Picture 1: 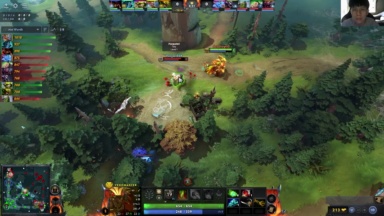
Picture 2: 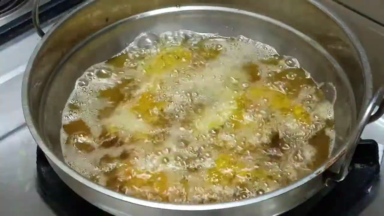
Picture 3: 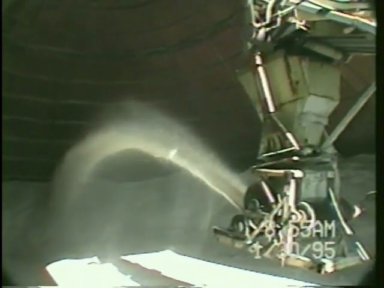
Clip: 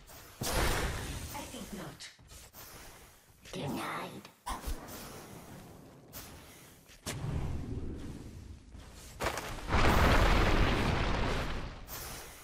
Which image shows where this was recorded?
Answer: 1